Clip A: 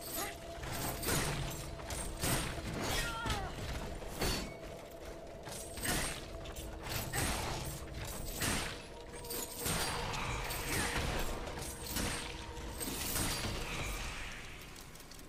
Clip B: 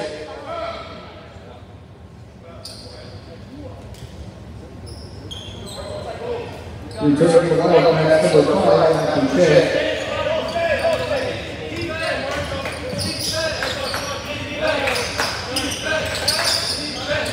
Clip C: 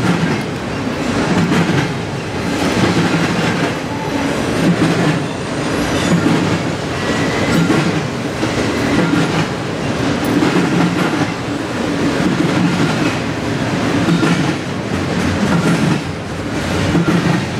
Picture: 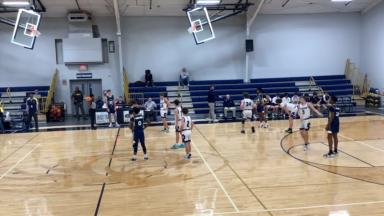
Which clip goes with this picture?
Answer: B